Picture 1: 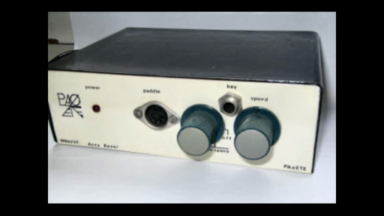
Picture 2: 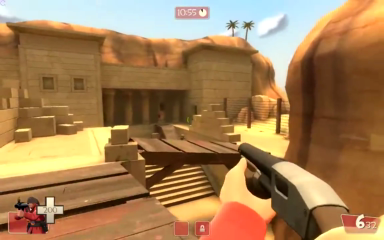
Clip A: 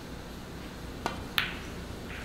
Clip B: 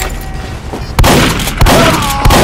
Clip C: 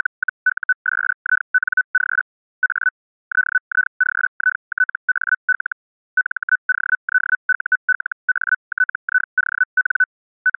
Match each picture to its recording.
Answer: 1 C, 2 B